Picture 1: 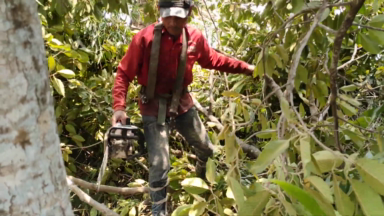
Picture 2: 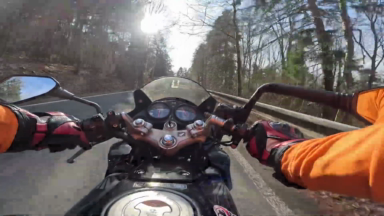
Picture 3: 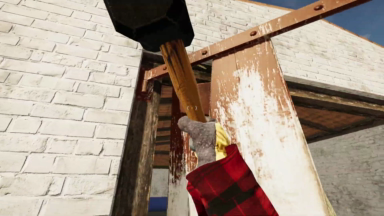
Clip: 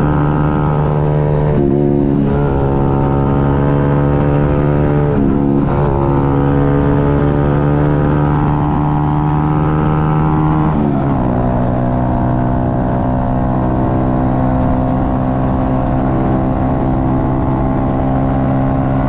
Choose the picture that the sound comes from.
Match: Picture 2